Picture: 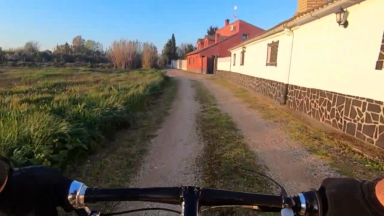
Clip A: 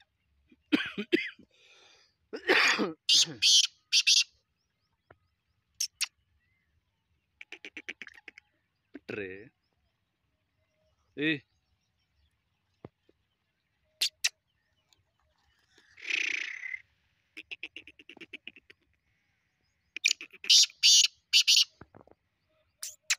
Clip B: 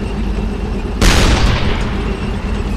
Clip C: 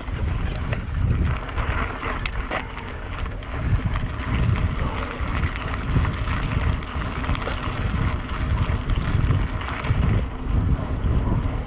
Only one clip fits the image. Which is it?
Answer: C